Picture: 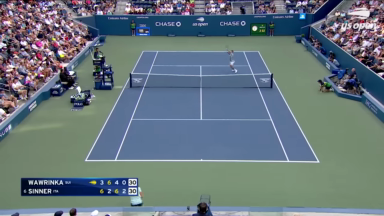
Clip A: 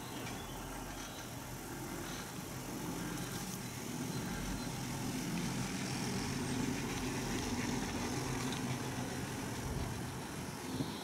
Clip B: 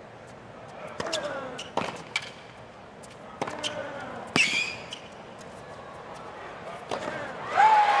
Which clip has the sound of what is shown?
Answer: B